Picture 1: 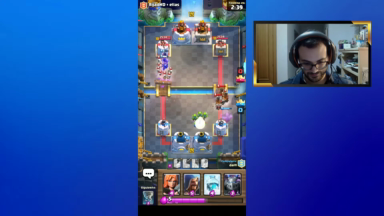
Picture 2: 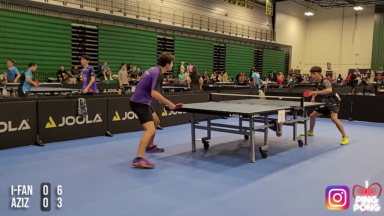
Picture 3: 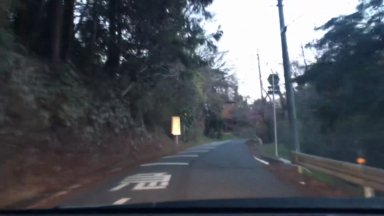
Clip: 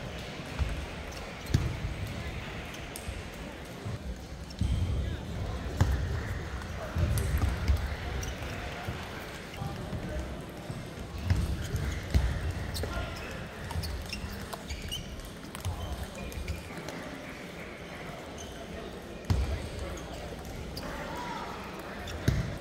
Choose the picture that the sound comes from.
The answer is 2